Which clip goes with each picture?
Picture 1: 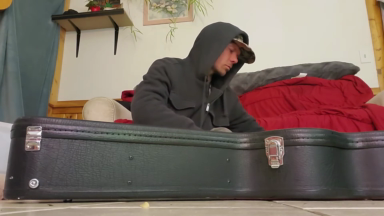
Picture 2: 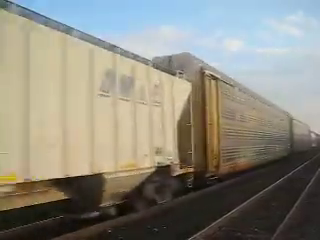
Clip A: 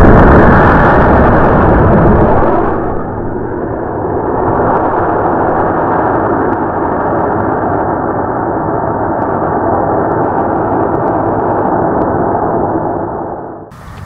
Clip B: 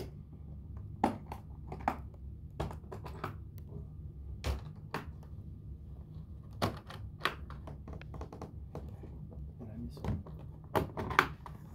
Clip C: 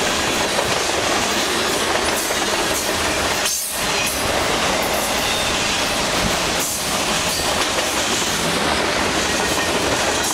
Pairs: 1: B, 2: C